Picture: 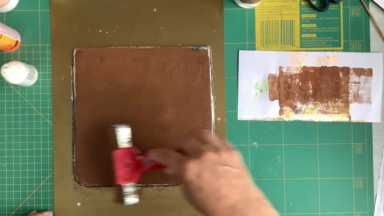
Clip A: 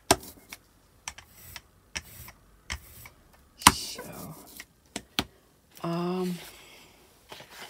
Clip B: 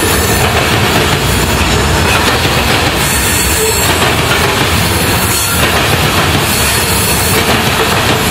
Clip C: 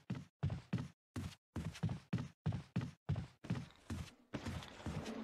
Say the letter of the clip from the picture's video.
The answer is A